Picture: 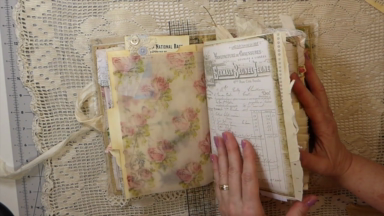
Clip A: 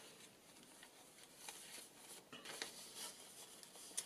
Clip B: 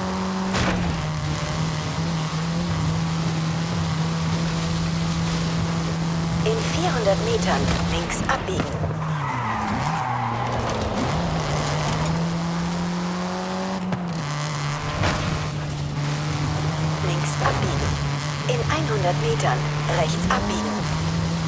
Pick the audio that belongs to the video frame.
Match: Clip A